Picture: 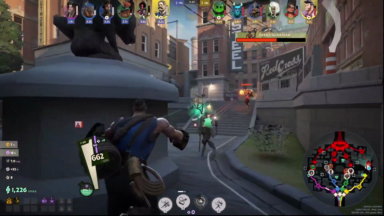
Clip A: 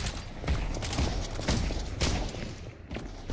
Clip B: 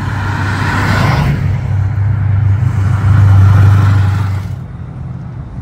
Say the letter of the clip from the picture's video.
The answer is A